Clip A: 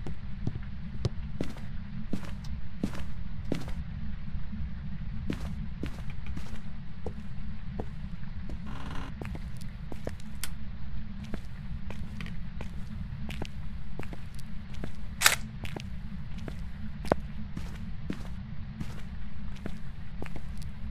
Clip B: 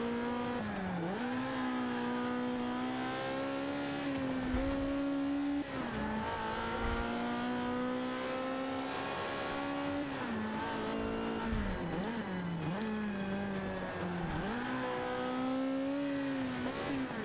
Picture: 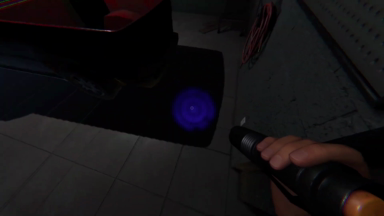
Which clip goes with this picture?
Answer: A